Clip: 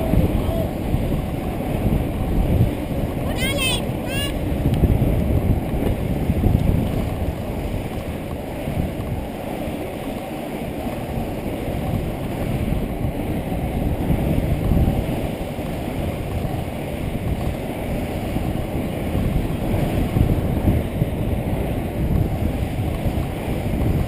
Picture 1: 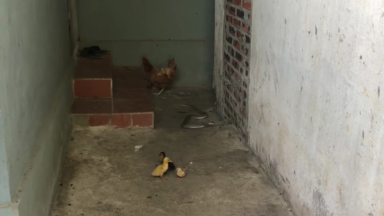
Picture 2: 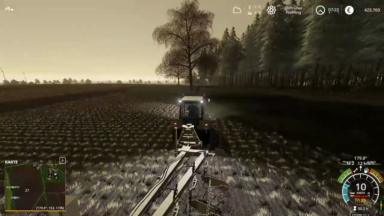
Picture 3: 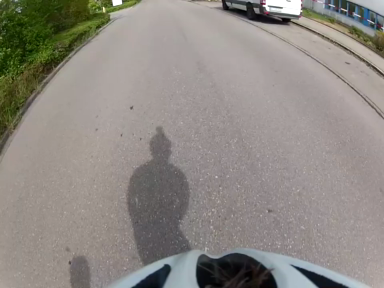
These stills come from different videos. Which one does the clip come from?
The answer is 3